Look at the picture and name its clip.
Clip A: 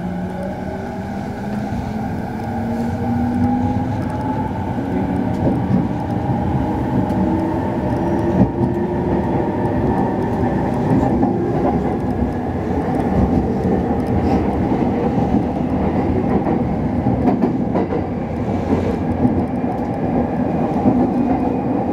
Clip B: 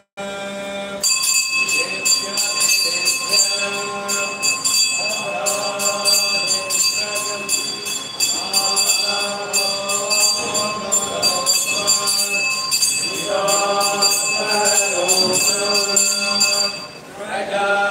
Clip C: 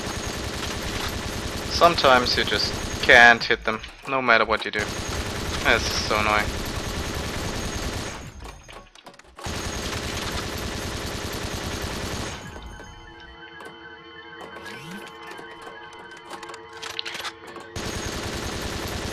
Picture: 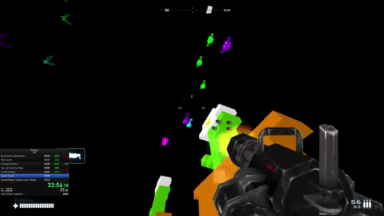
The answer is C